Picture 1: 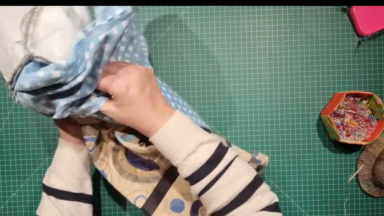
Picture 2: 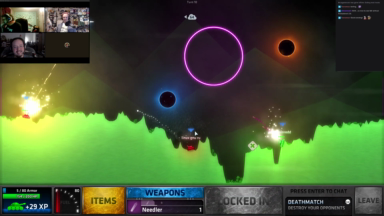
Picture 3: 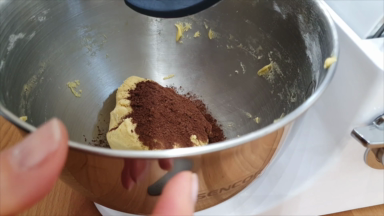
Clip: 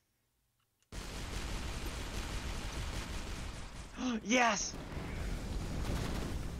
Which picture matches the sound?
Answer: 2